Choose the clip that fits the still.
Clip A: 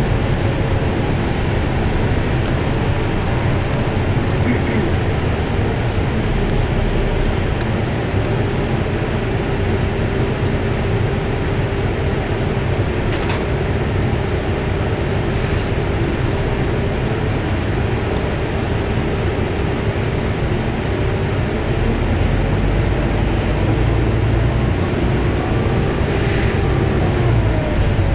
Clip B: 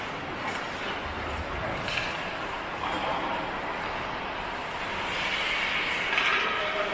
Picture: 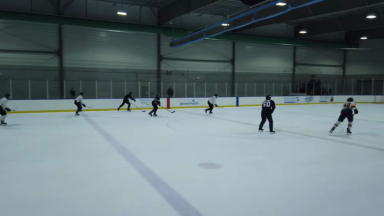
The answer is B